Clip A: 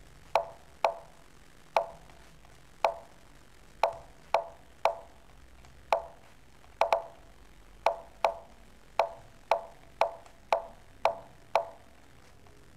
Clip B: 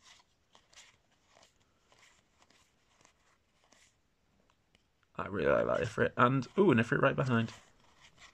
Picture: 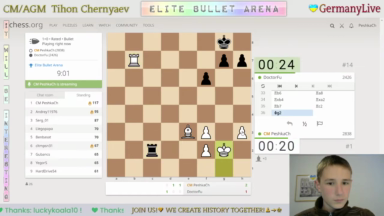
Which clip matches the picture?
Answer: A